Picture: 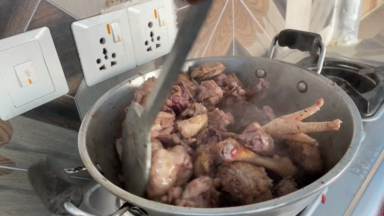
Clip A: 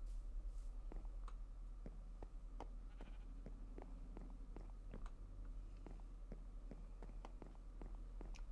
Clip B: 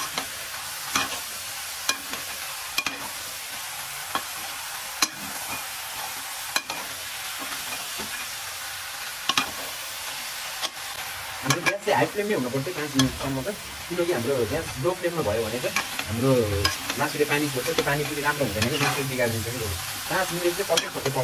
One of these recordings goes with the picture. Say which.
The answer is B